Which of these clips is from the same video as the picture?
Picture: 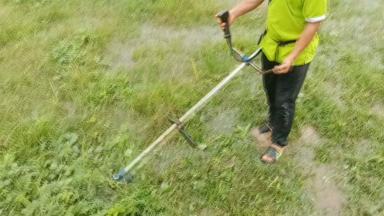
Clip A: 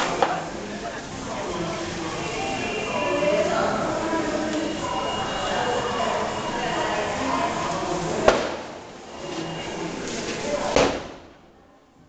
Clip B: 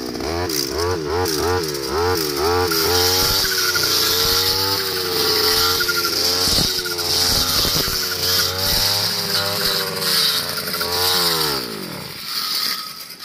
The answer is B